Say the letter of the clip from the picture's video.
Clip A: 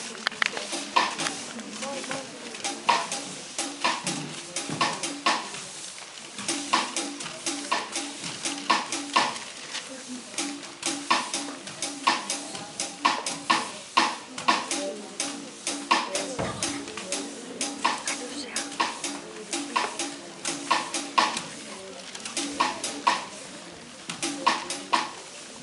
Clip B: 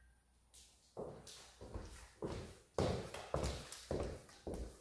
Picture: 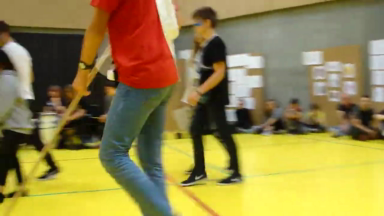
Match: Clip A